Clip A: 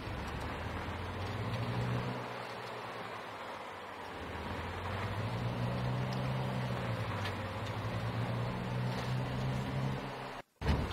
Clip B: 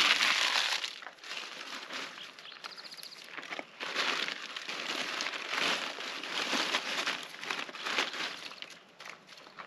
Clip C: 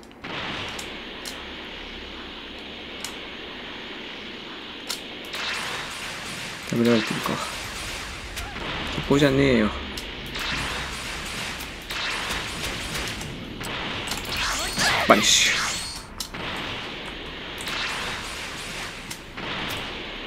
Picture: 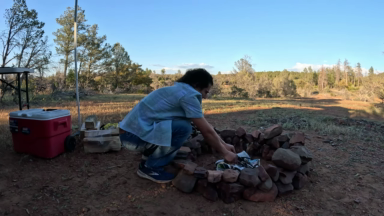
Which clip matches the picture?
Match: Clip B